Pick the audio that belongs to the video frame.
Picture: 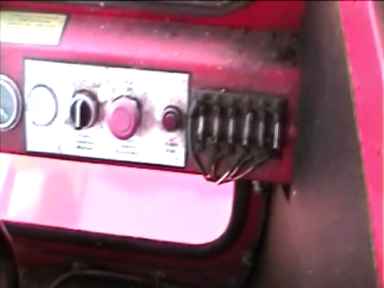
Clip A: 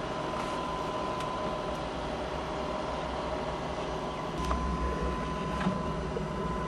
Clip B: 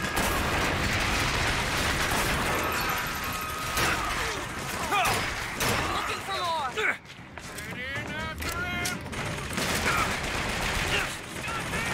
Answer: A